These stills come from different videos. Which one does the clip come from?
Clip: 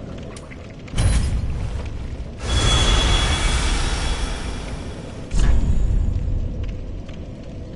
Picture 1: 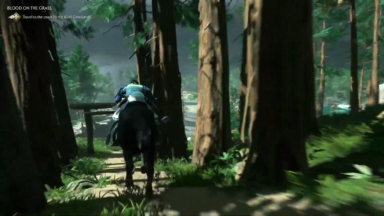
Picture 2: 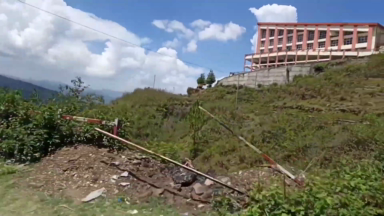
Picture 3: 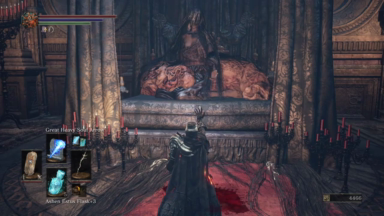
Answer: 3